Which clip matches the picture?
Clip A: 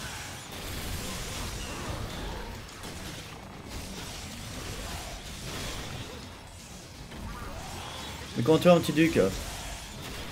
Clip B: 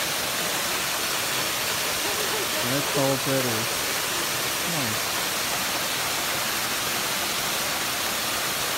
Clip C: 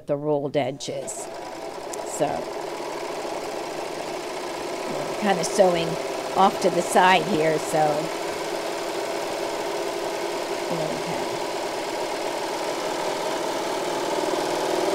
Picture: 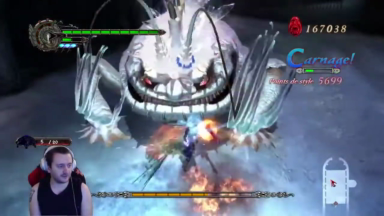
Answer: A